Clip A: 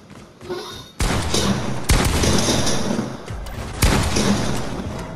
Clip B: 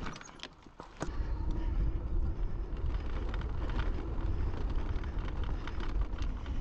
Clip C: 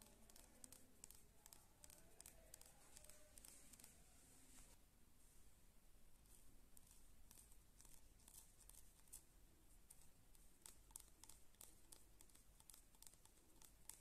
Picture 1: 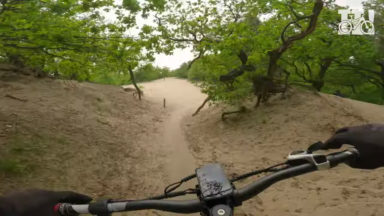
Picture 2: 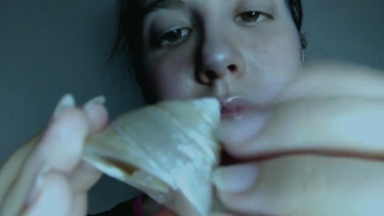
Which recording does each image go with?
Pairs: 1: B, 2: C